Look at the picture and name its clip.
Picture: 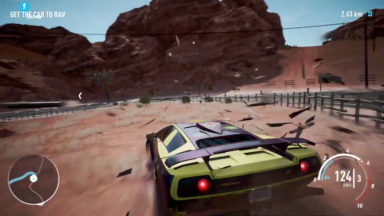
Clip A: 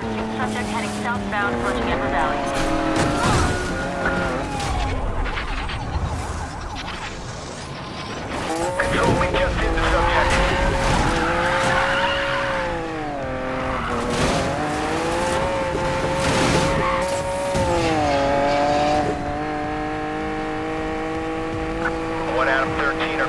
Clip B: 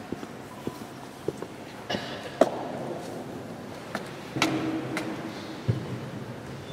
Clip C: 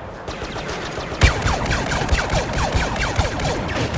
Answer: A